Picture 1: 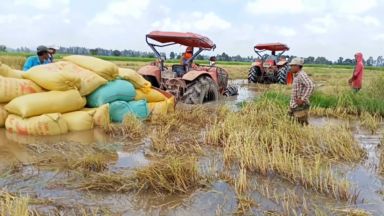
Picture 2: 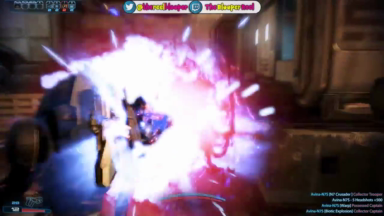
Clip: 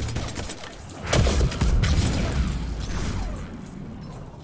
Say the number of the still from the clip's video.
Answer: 2